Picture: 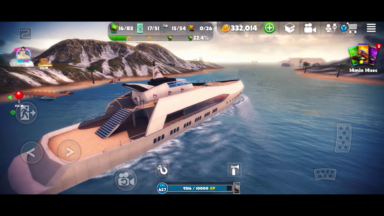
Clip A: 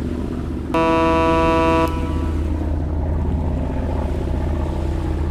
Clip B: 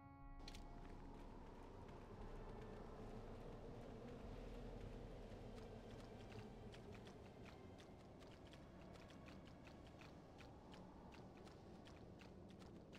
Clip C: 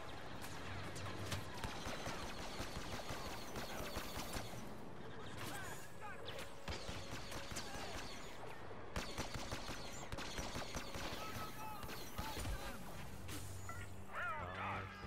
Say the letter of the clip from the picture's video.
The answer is A